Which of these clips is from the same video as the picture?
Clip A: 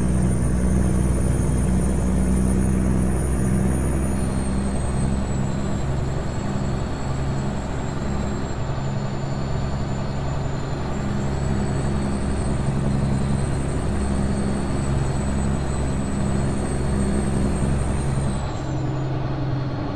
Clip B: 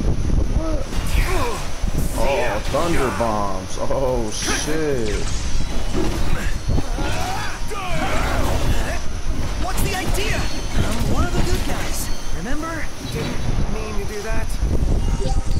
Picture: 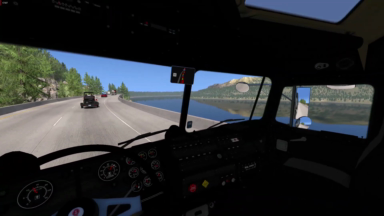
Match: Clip A